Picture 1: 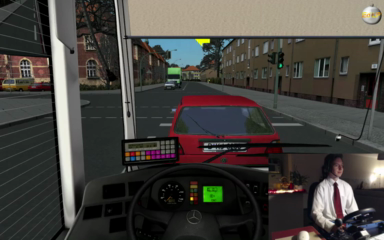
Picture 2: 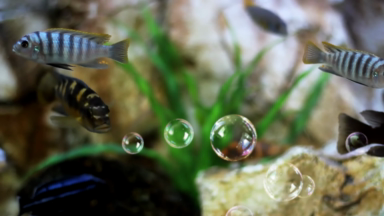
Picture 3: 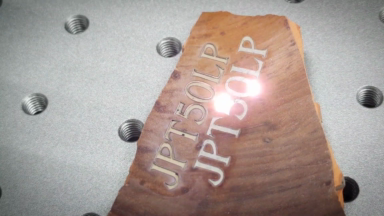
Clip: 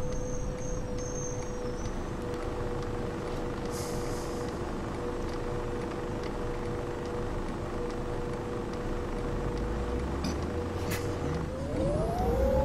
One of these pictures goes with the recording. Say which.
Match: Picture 1